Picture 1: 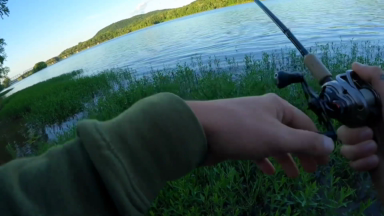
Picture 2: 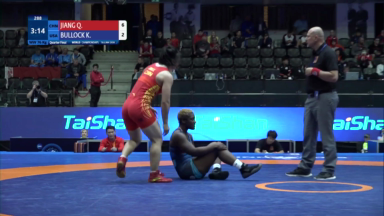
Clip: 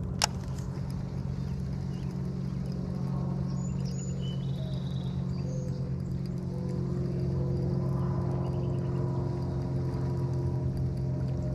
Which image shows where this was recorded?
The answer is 1